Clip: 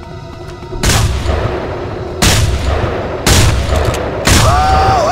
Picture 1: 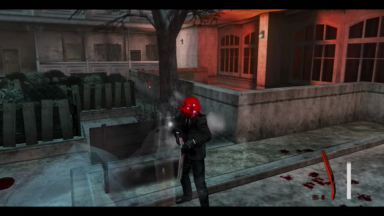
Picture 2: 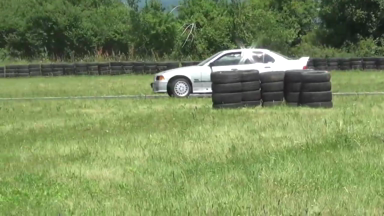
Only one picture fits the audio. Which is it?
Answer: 1